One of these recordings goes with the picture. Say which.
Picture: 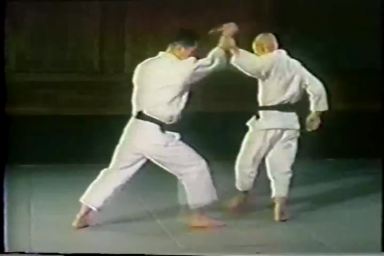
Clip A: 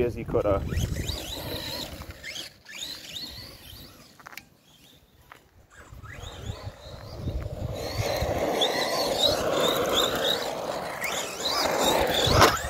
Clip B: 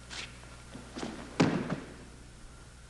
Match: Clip B